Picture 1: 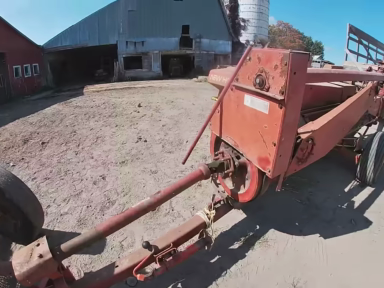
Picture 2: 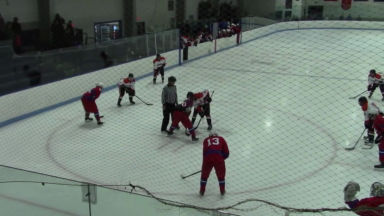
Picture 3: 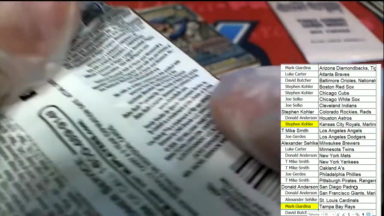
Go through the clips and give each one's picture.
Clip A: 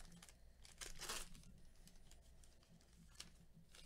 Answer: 3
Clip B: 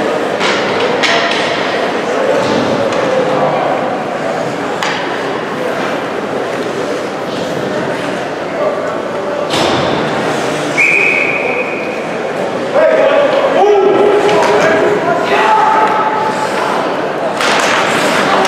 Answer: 2